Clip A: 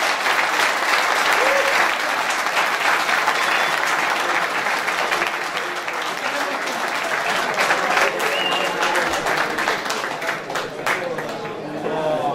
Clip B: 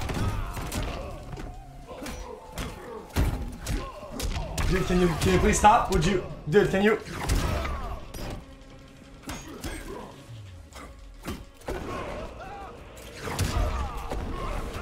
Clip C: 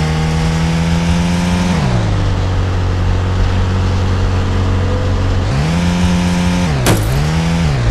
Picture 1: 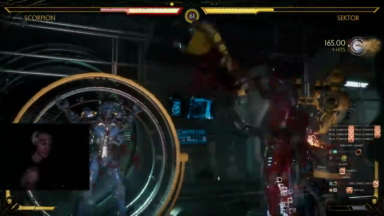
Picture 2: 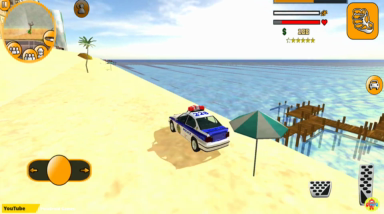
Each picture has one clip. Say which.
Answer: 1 B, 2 C